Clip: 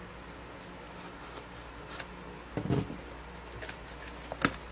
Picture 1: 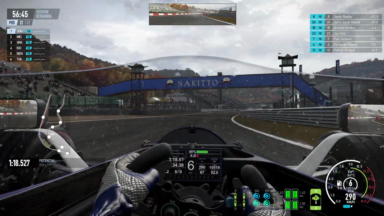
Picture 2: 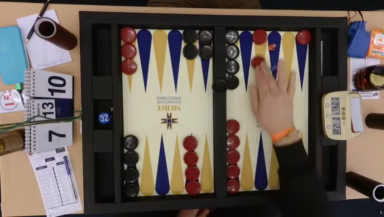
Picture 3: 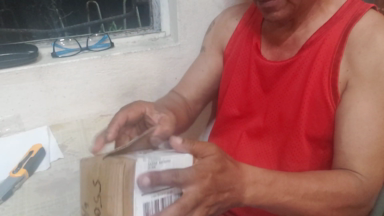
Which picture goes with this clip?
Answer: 3